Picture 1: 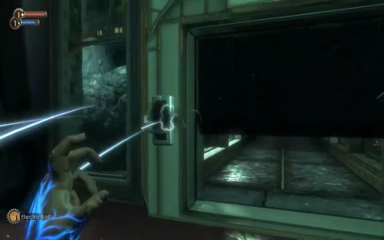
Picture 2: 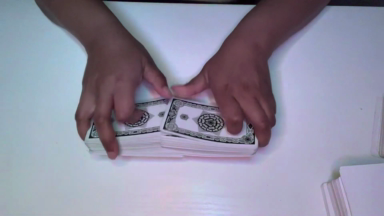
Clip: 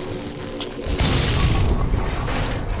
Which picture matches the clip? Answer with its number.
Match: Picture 1